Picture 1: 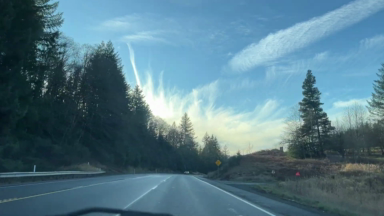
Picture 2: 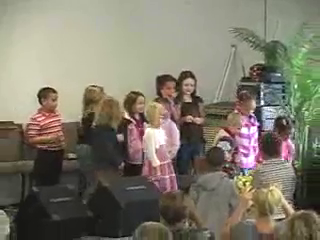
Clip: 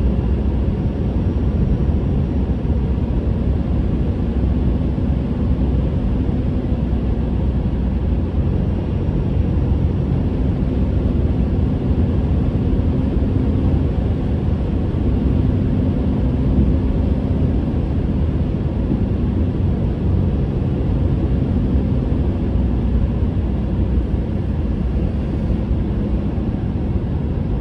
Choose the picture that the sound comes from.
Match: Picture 1